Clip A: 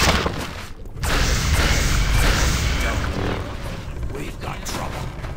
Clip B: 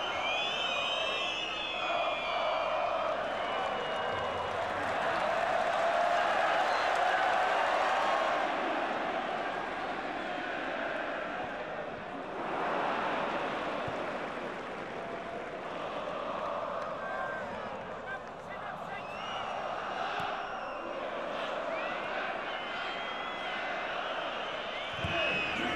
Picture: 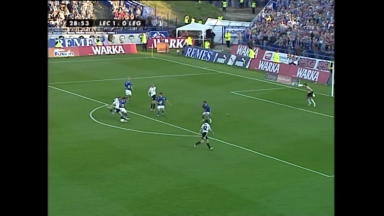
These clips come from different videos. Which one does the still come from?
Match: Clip B